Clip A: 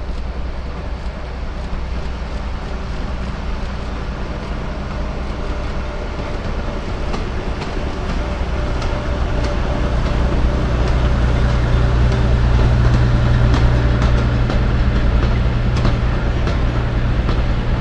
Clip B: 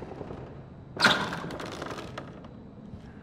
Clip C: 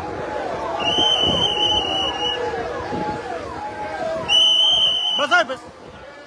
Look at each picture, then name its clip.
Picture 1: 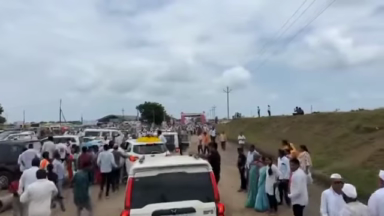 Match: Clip C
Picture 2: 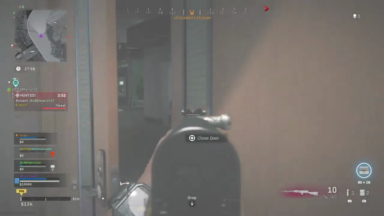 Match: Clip B